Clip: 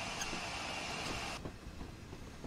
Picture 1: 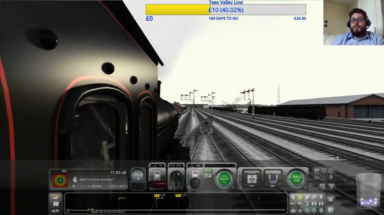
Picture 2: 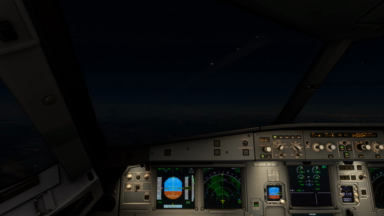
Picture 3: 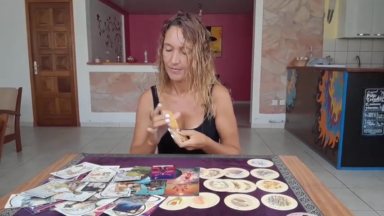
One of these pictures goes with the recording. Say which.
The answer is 1